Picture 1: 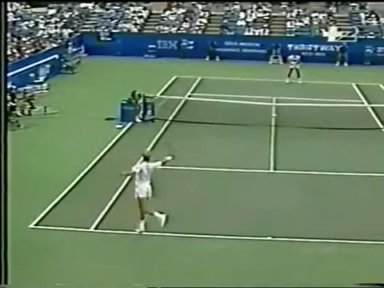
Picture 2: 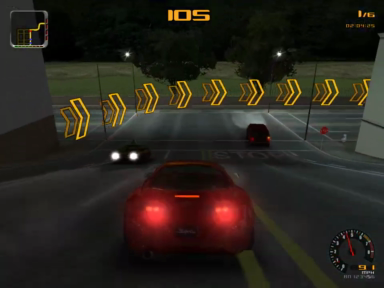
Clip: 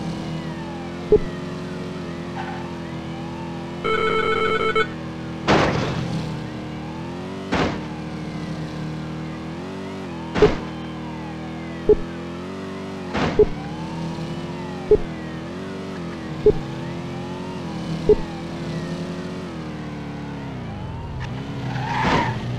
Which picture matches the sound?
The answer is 2